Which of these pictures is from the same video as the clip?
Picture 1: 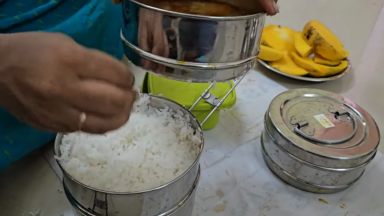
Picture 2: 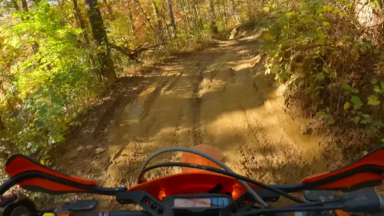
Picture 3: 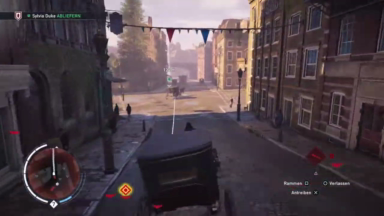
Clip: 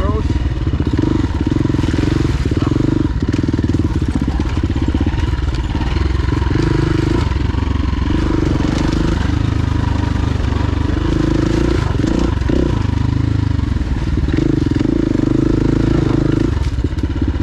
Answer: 2